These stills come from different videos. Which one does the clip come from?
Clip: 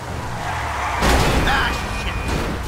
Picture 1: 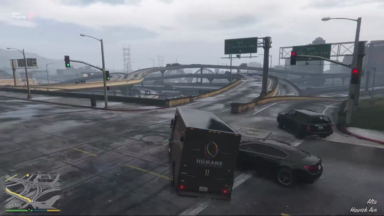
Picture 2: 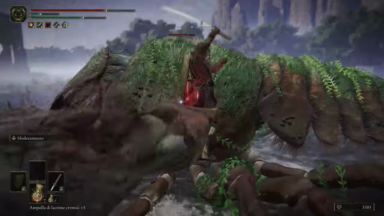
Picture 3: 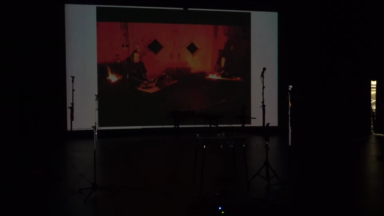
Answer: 1